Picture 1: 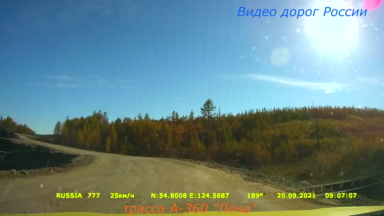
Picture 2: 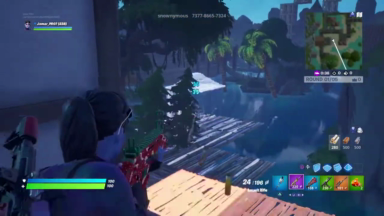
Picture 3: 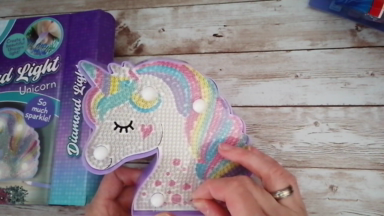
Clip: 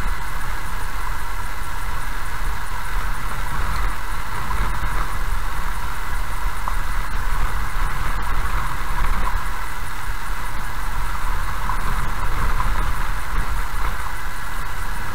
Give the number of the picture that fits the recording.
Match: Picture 1